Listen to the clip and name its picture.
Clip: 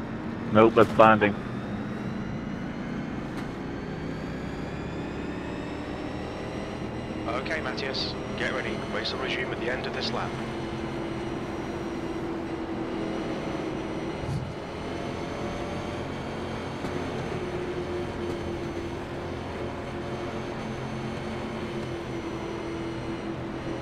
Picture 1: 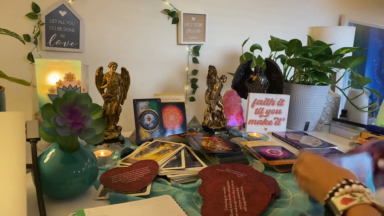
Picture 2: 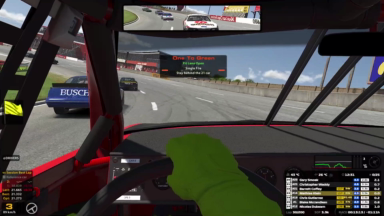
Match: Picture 2